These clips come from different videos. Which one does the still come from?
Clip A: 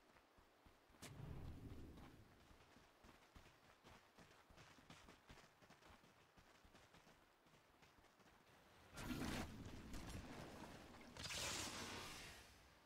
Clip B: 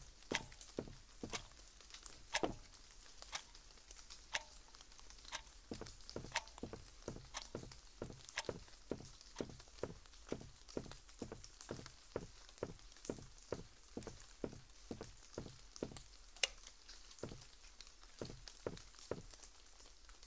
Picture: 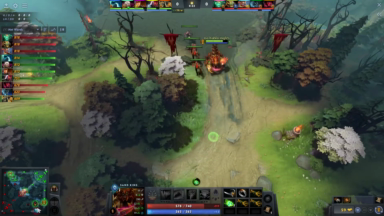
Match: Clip A